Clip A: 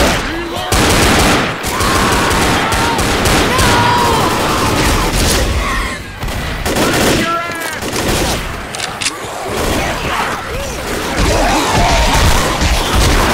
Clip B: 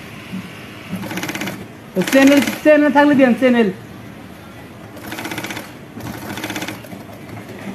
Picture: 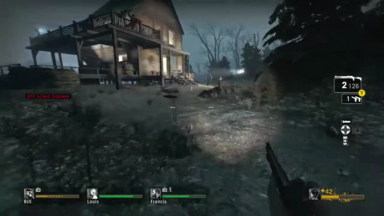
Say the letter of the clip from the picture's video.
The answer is A